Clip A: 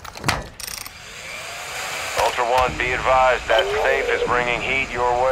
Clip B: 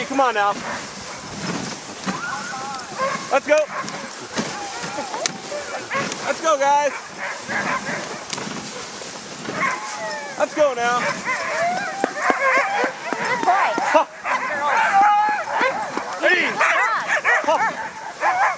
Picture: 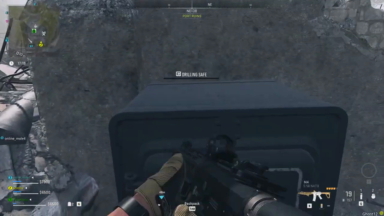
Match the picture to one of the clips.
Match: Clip A